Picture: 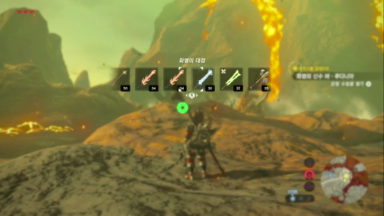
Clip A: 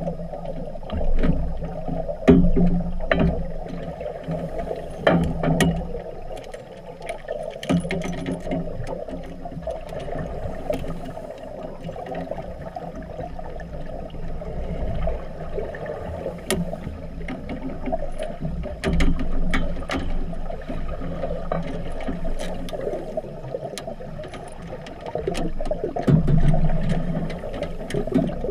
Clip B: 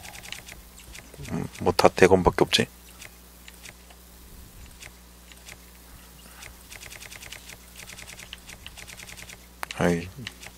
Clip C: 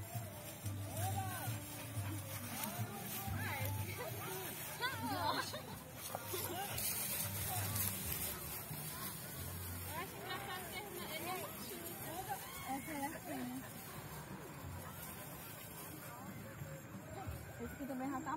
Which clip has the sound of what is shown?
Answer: B